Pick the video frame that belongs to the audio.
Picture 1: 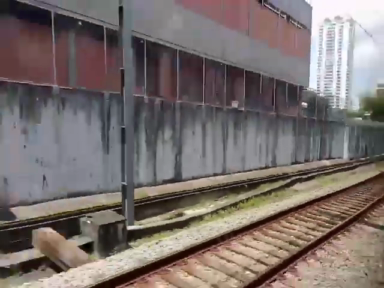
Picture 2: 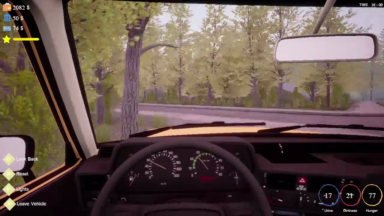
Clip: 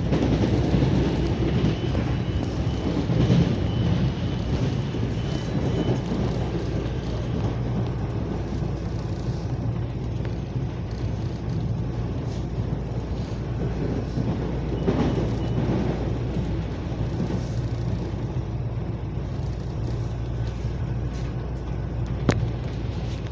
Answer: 1